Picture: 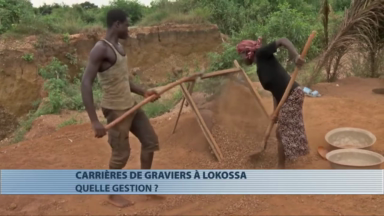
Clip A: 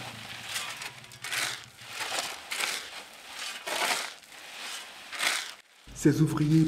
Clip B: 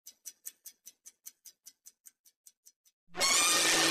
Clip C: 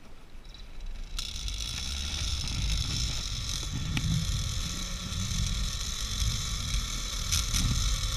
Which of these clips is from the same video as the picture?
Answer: A